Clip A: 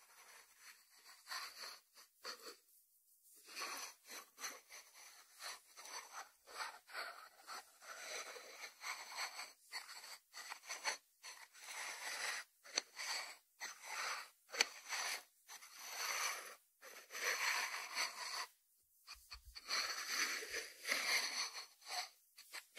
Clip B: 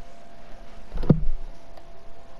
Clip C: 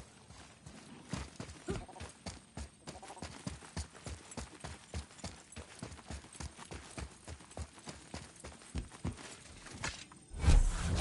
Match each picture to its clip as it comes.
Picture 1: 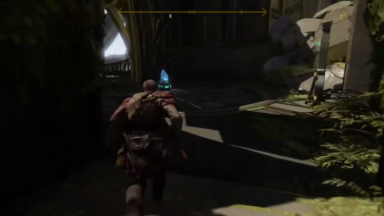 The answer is C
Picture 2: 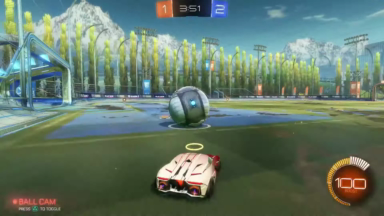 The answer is B